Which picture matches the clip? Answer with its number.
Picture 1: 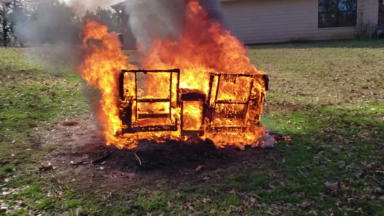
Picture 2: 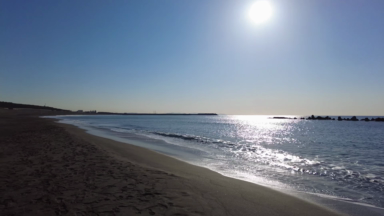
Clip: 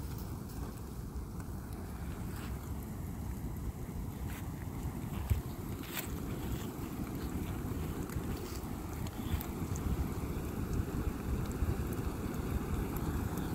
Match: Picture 1